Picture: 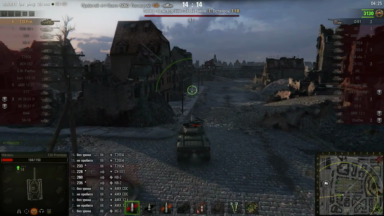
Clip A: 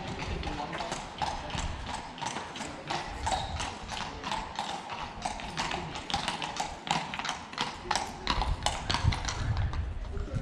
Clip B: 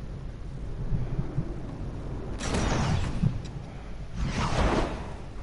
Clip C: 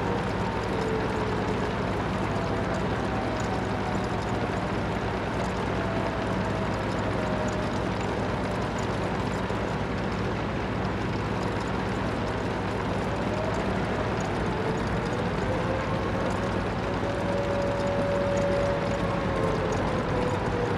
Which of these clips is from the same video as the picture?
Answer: C